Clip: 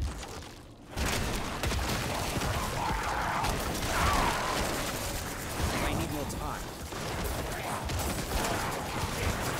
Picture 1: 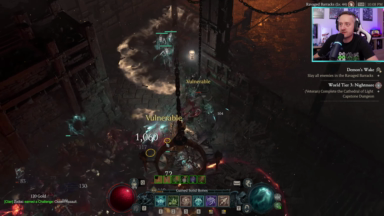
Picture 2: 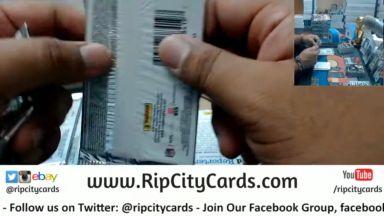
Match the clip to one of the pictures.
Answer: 1